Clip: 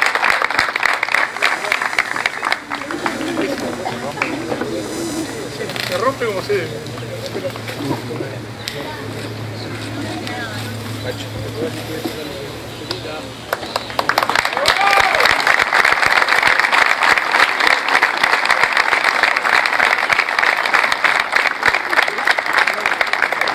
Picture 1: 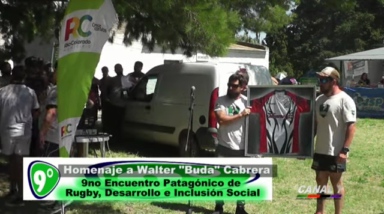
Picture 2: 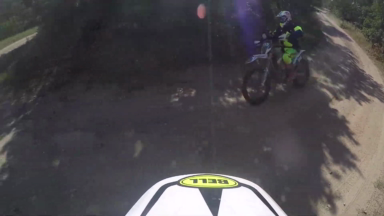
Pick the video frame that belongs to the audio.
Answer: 1